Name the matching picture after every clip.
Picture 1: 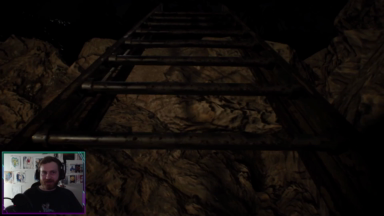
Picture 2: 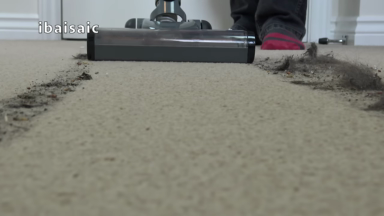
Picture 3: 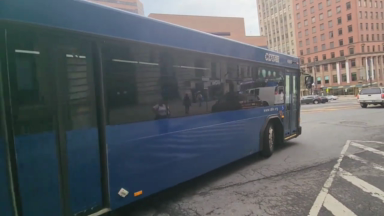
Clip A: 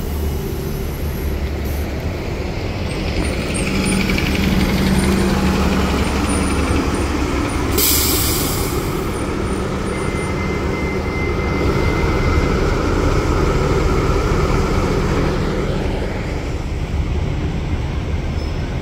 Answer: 3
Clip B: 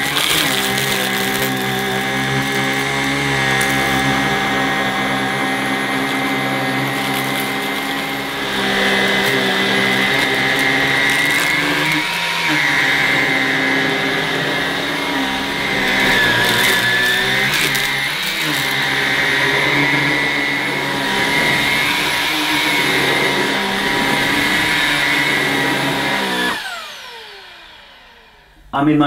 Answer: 2